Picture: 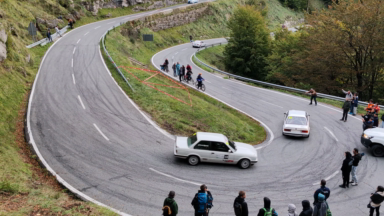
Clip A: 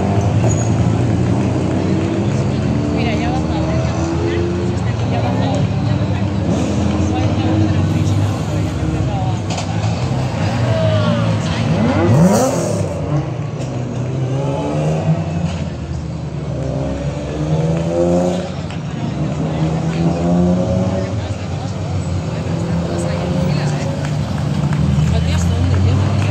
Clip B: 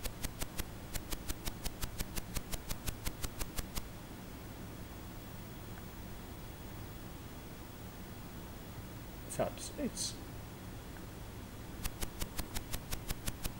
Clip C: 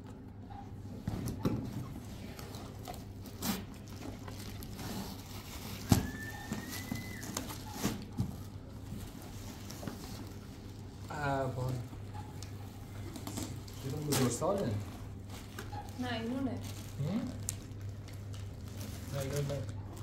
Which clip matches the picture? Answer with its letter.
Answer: A